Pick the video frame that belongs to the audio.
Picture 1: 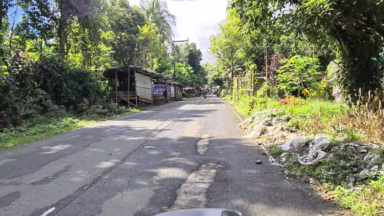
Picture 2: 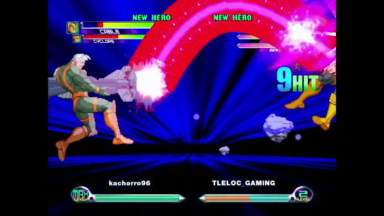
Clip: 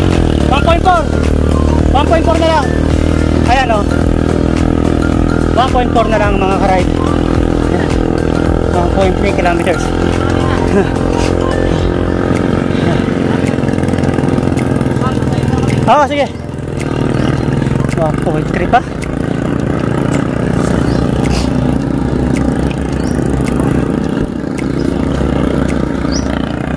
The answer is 1